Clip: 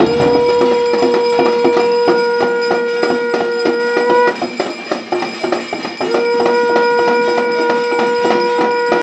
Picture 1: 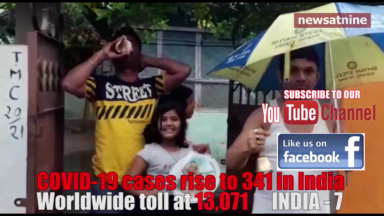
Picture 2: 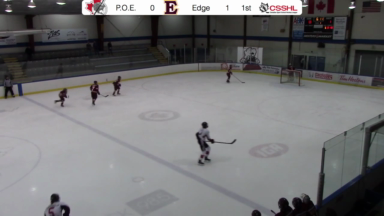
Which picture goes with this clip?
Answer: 1